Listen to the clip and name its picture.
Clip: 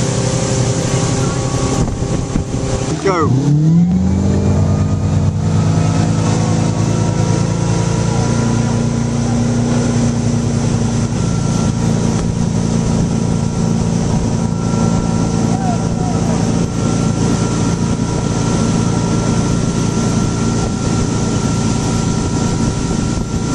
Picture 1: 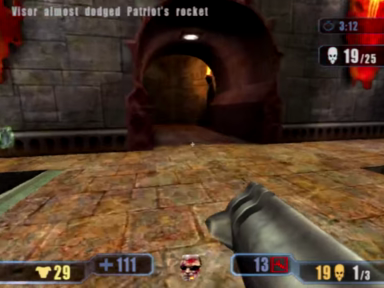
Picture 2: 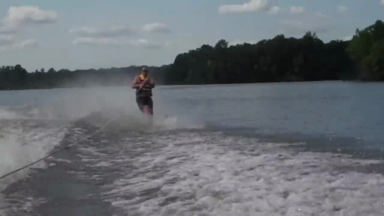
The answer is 2